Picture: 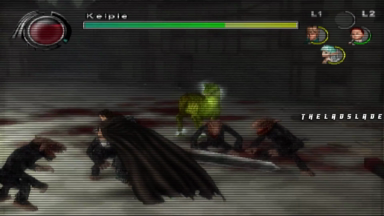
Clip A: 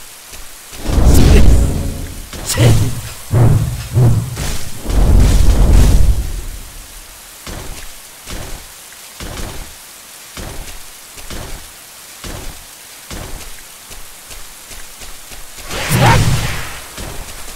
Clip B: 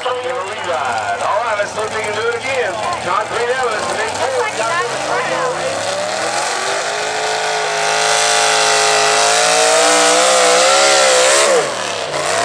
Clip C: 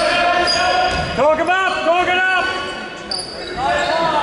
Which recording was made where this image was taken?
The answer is A